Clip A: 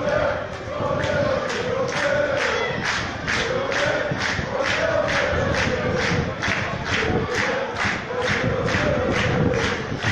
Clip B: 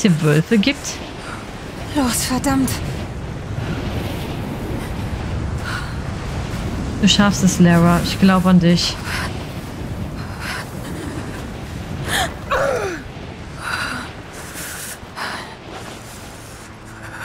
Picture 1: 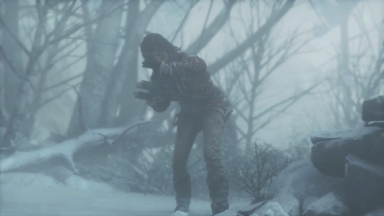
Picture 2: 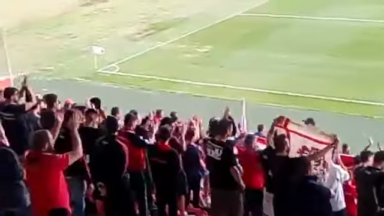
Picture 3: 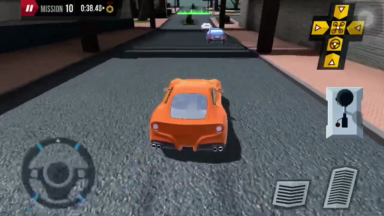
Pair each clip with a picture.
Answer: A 2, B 1